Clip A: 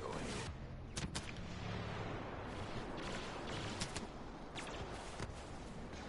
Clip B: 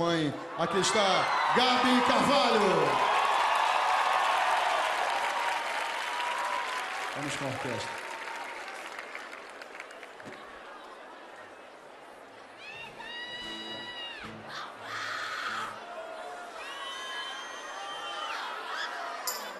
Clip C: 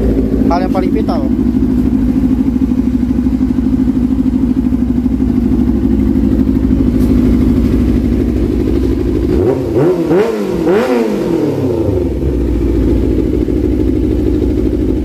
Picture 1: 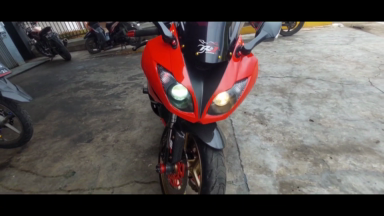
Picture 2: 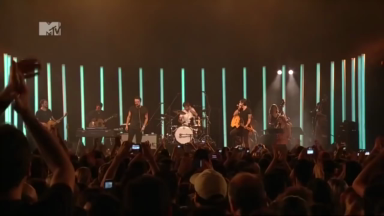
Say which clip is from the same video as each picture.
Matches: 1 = C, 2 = B